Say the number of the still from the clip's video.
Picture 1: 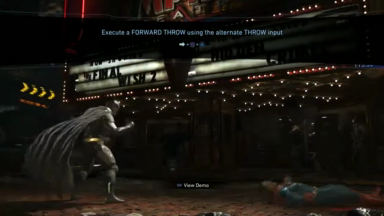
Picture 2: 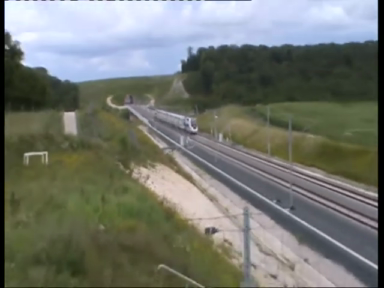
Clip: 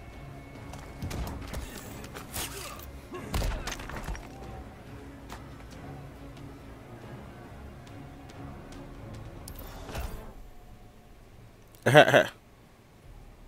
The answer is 1